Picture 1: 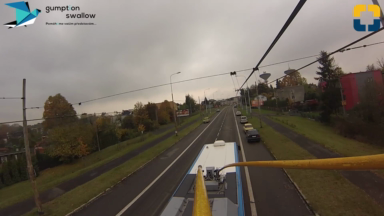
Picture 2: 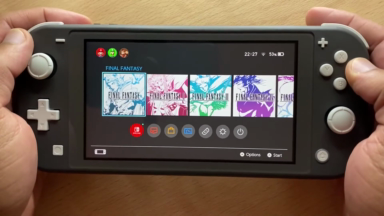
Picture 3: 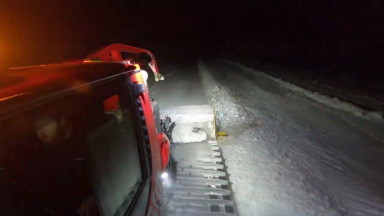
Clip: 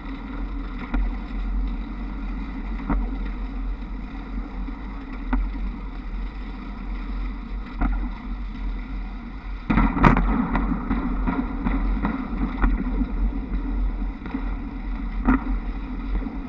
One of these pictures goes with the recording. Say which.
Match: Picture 1